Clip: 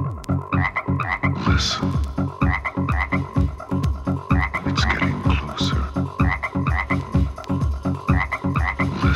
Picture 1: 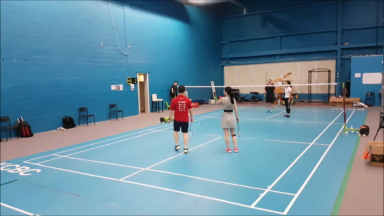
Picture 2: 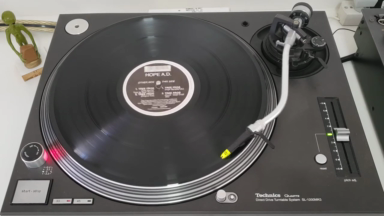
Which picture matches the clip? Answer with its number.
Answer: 2